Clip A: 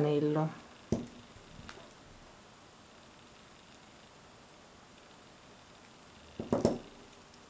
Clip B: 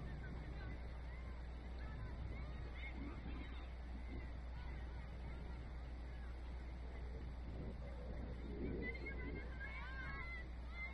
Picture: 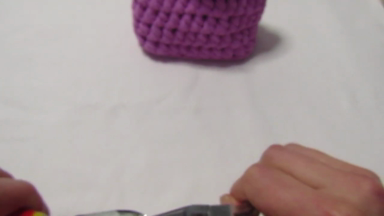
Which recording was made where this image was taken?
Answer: A